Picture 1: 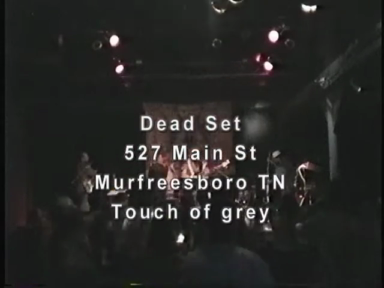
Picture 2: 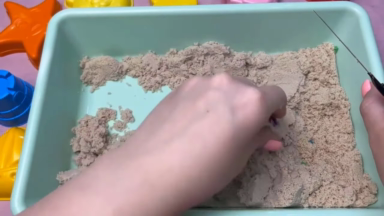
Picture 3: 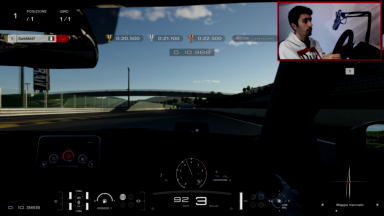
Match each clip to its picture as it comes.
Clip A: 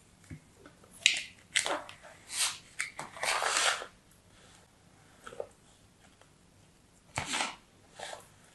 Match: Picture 2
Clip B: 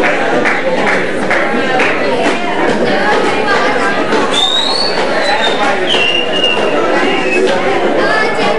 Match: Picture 1